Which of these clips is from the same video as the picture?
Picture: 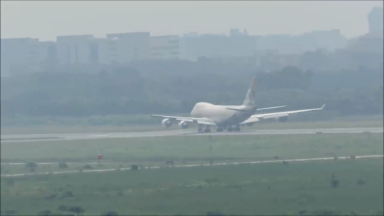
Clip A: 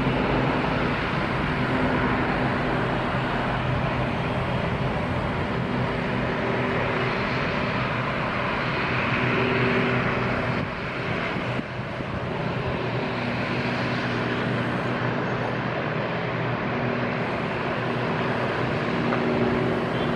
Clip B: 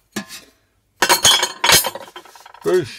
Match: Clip A